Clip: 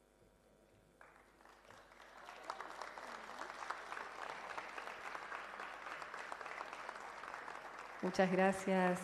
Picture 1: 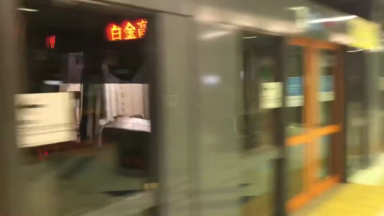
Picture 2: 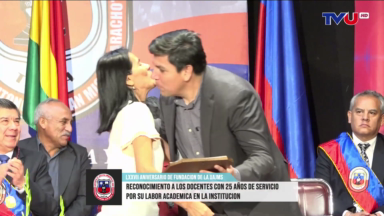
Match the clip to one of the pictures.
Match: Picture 2